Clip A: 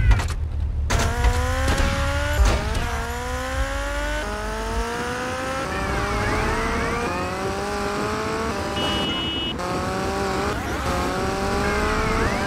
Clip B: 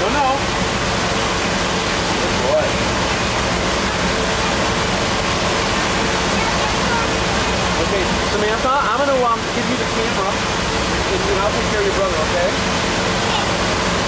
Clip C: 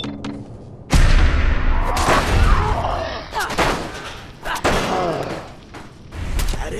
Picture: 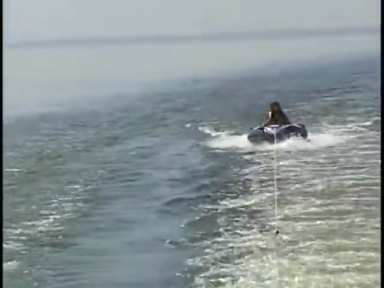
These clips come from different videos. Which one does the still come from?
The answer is B